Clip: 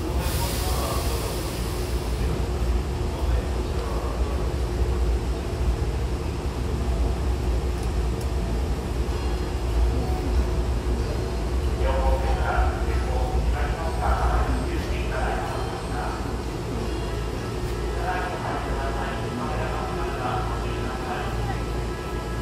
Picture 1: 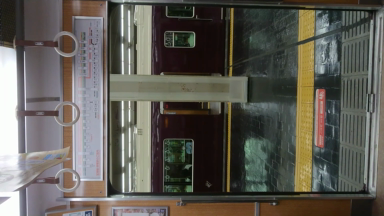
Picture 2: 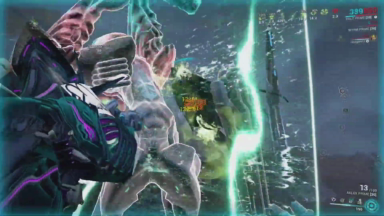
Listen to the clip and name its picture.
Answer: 1